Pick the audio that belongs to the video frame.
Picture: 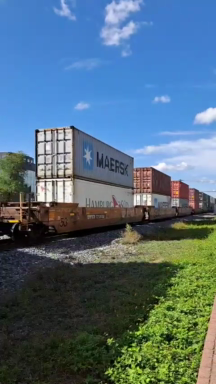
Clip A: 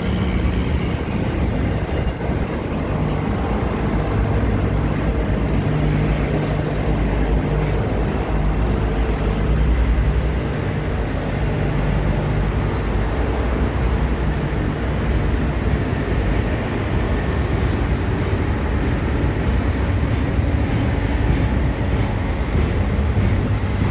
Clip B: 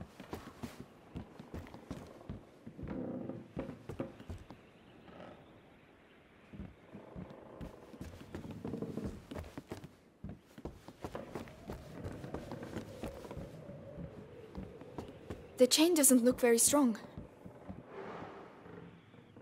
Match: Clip A